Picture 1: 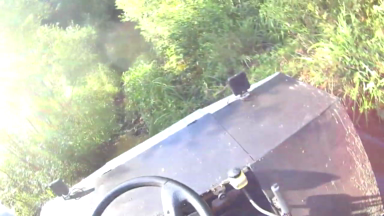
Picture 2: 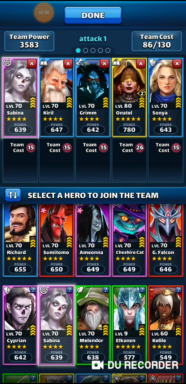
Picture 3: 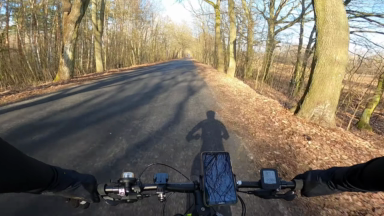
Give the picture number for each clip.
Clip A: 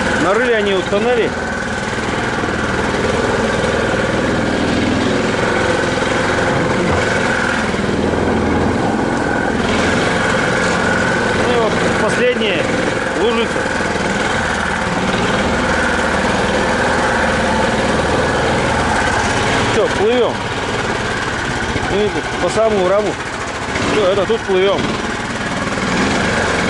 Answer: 1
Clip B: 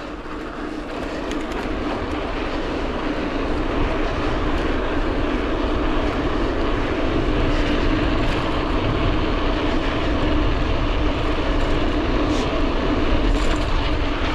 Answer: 3